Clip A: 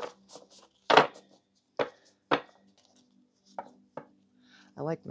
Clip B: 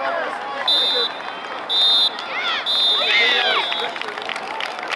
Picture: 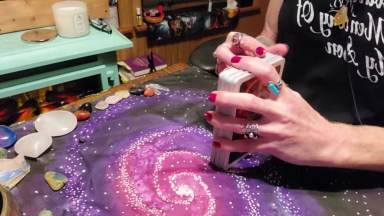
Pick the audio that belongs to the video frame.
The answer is A